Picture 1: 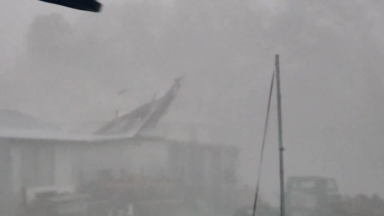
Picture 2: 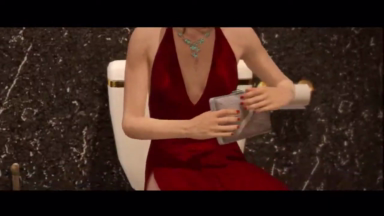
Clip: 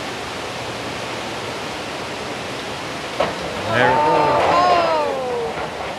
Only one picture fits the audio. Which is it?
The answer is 1